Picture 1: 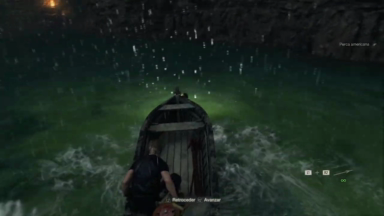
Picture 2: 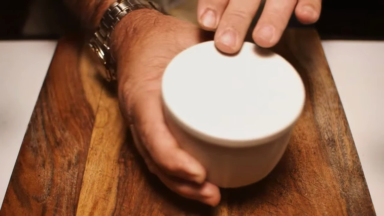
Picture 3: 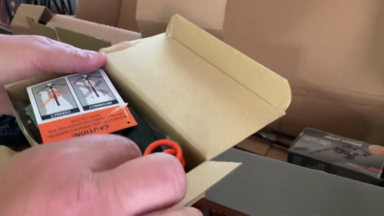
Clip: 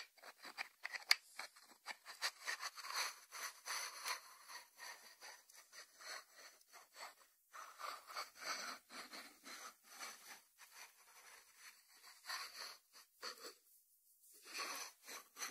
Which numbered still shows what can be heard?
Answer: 2